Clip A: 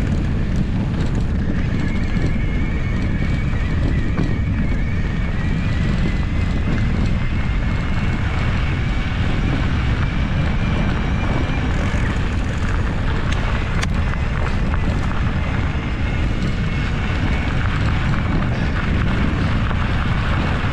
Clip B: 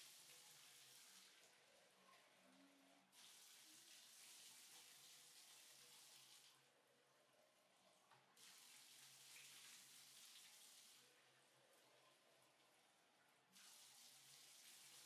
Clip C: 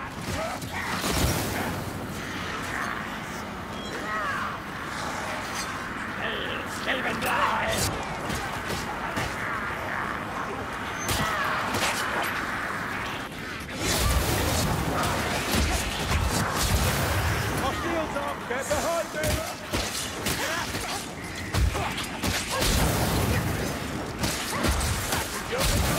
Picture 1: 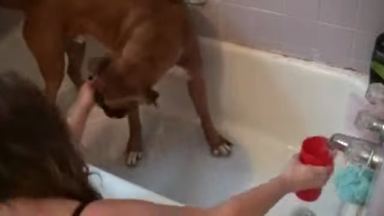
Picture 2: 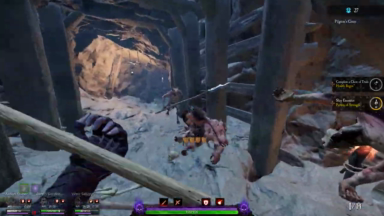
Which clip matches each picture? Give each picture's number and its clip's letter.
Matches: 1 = B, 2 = C